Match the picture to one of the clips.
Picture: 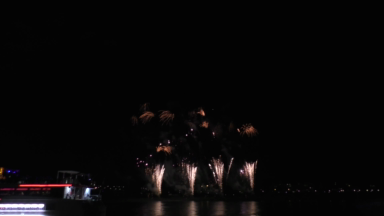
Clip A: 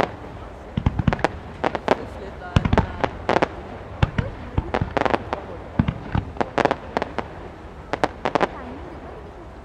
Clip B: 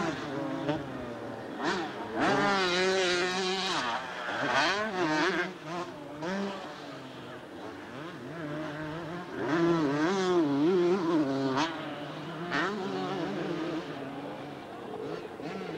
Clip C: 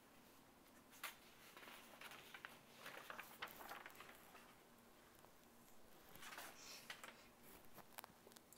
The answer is A